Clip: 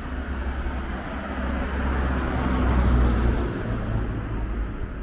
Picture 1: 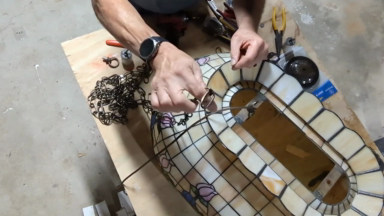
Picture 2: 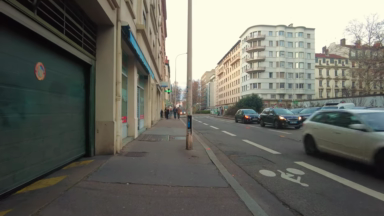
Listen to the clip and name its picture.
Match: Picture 2